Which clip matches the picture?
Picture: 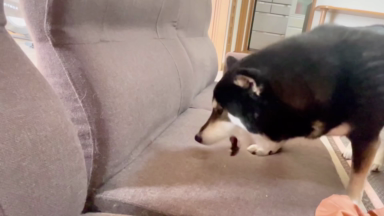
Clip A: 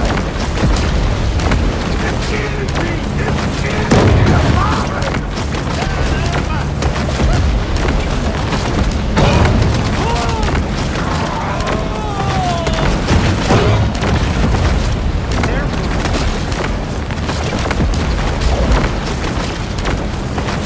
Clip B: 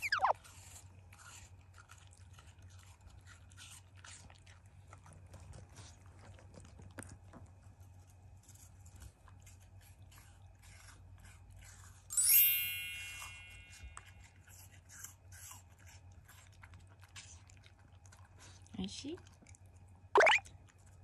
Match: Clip B